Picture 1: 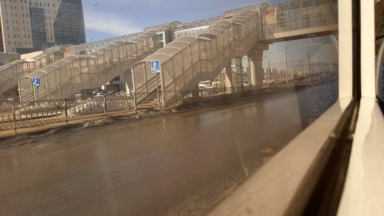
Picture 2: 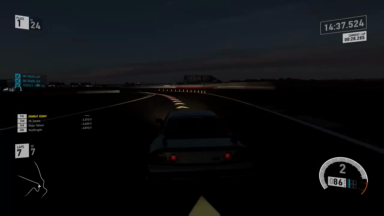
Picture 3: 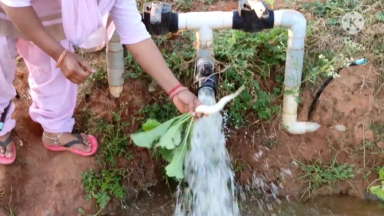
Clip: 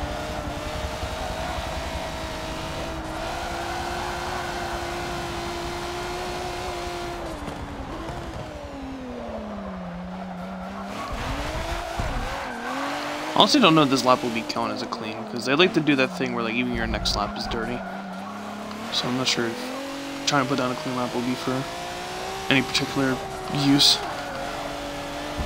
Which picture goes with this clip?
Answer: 2